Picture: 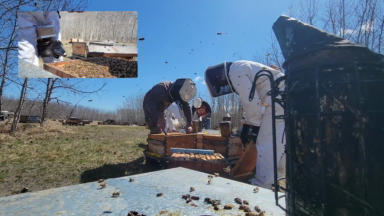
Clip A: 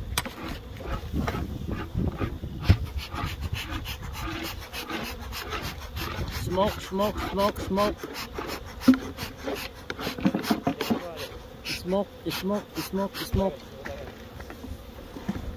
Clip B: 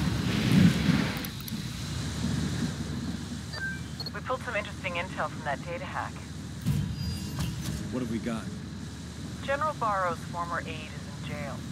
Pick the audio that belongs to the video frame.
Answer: A